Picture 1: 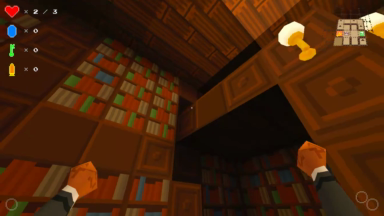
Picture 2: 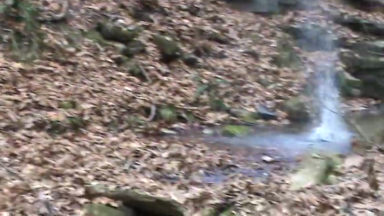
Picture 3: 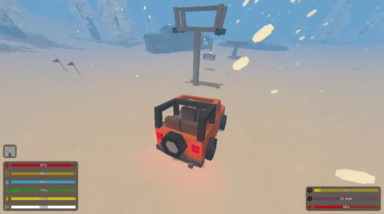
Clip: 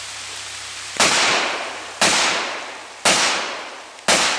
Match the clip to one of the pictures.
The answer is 2